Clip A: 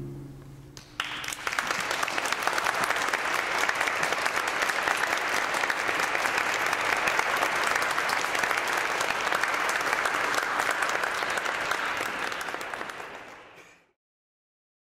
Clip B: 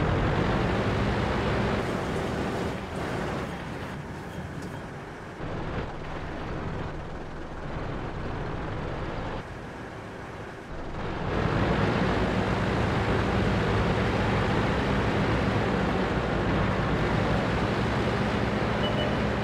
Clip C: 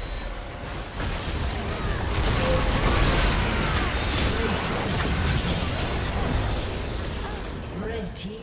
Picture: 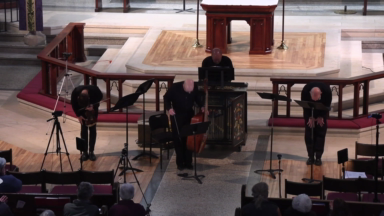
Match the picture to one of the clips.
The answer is A